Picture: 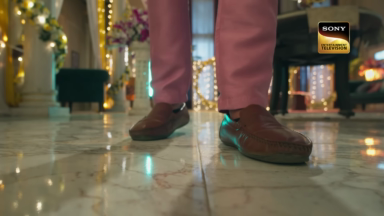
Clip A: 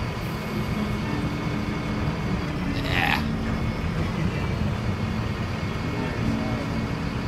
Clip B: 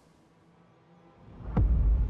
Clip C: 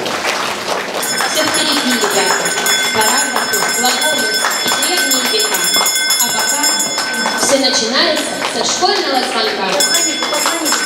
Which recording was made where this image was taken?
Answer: B